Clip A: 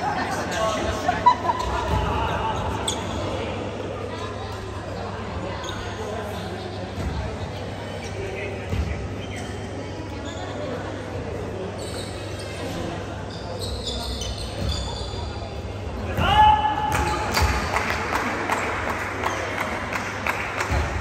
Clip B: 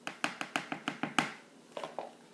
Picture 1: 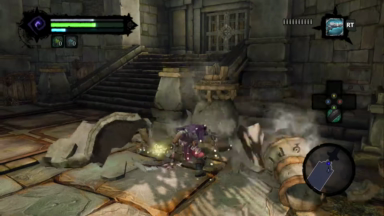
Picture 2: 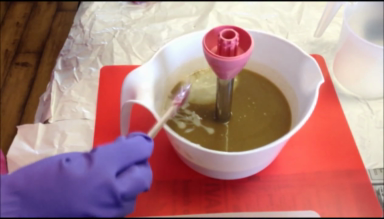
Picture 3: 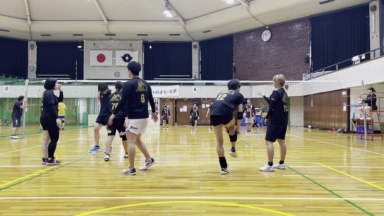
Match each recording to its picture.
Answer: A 3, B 2